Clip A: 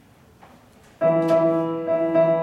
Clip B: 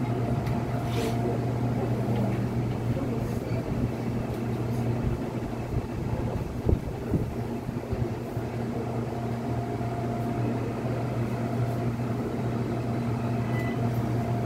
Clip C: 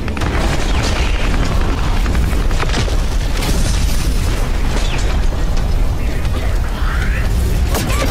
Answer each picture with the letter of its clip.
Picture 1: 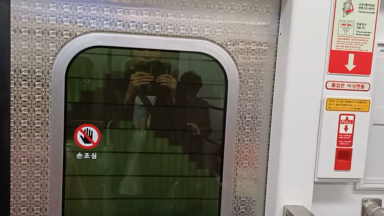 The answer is B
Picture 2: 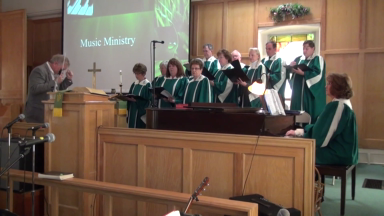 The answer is A